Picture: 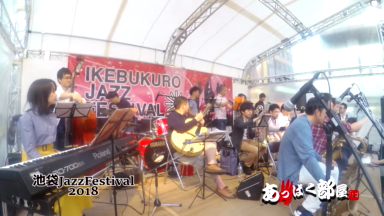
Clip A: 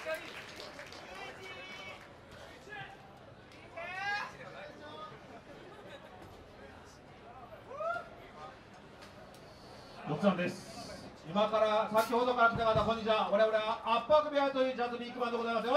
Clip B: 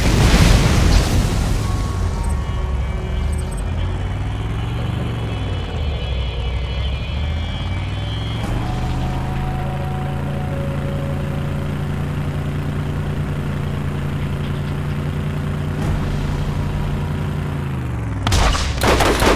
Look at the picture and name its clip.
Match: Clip A